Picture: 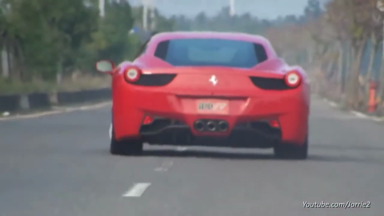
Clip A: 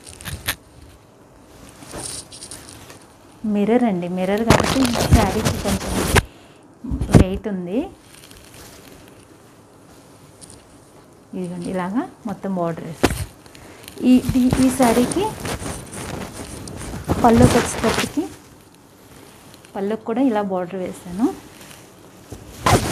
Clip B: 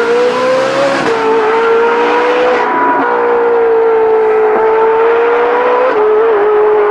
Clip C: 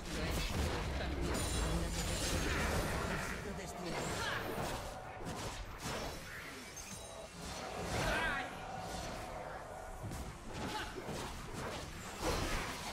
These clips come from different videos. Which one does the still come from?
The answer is B